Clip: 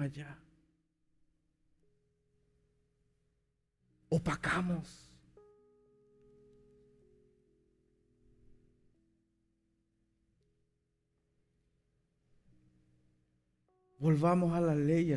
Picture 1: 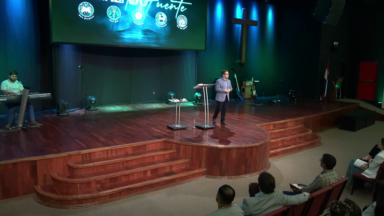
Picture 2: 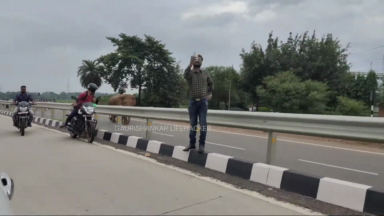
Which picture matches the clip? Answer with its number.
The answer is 1